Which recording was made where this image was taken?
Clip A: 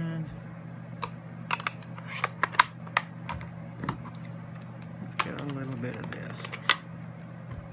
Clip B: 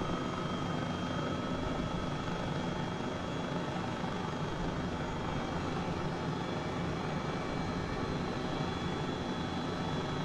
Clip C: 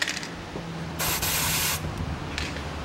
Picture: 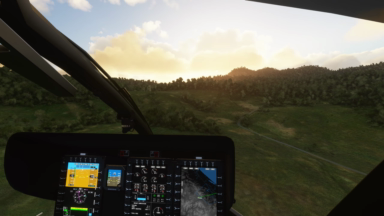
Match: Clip B